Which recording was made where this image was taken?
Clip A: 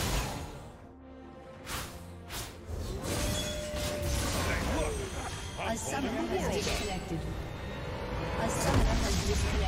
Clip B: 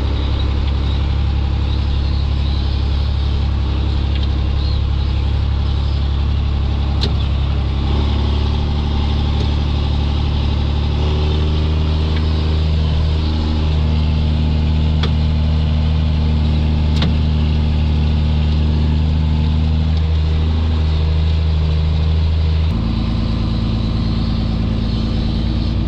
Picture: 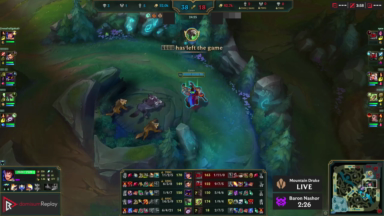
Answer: A